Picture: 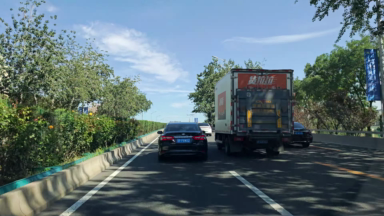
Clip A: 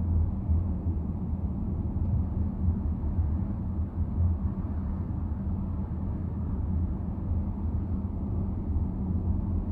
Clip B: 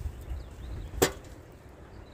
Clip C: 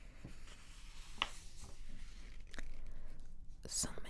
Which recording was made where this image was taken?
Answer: A